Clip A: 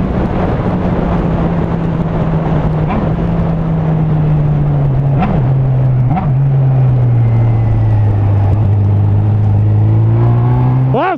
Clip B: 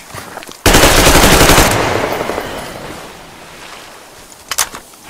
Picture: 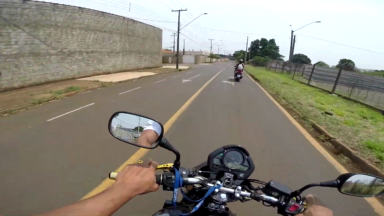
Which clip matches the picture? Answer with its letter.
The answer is A